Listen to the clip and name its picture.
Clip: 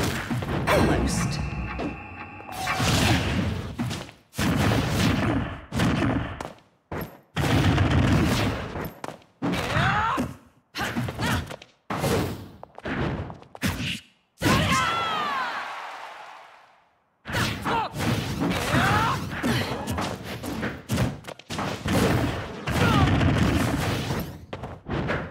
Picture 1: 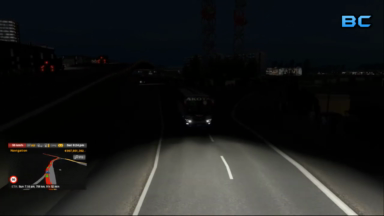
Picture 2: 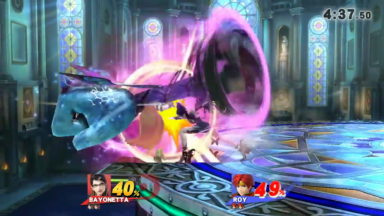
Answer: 2